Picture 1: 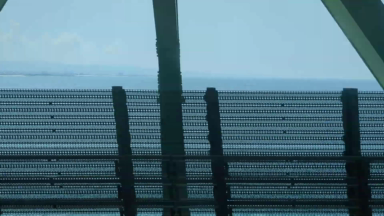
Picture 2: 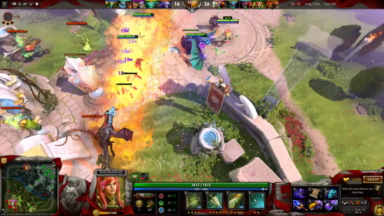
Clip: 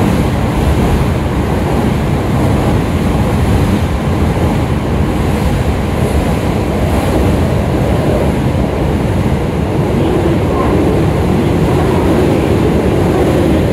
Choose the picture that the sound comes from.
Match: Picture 1